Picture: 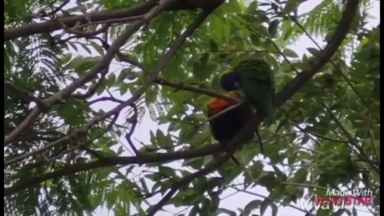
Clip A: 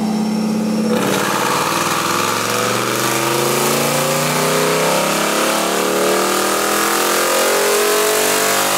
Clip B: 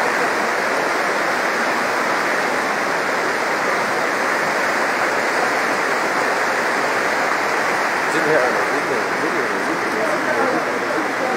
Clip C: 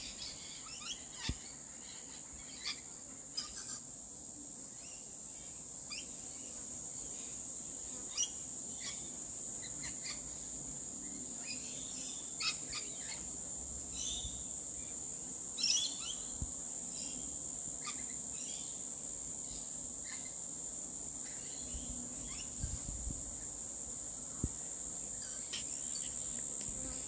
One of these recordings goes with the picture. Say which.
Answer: C